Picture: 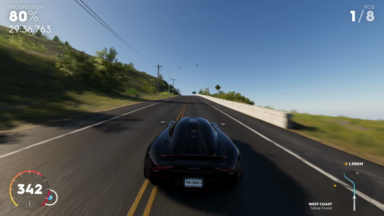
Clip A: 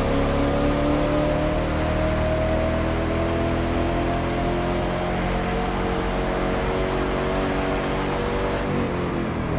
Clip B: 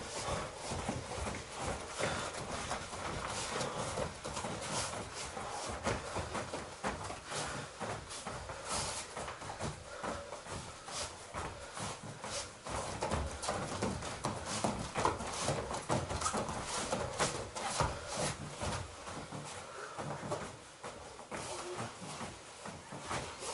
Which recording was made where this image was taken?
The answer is A